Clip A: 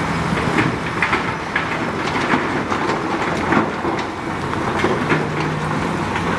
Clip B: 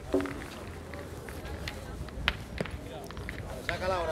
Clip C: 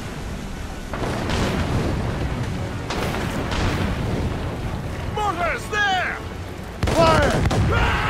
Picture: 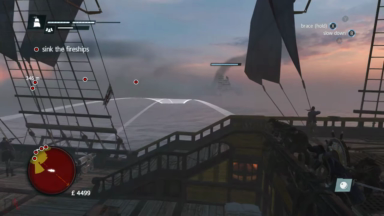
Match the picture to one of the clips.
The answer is C